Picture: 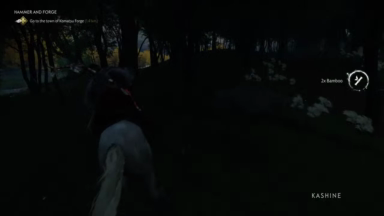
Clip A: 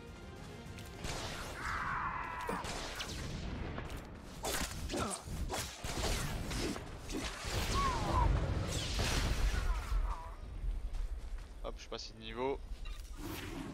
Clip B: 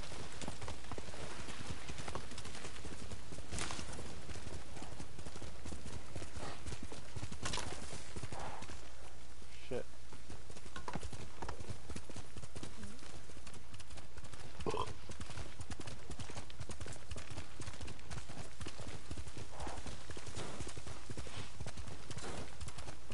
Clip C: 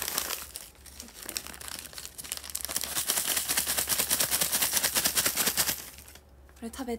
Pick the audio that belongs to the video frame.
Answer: B